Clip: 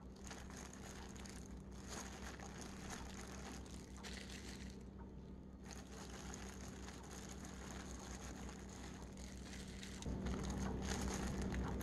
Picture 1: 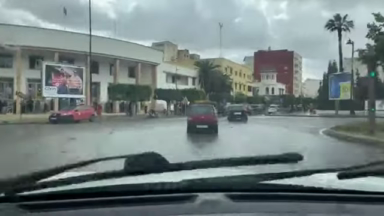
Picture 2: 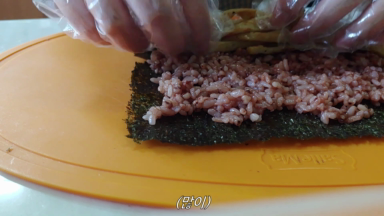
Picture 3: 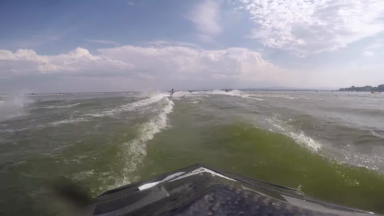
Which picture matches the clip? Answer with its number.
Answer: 2